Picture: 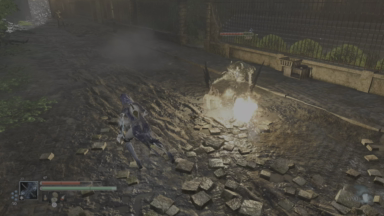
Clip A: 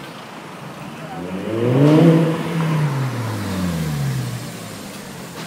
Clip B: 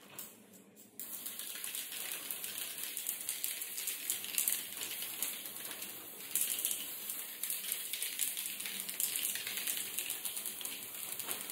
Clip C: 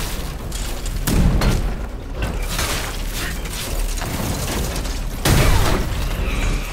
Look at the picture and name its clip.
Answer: C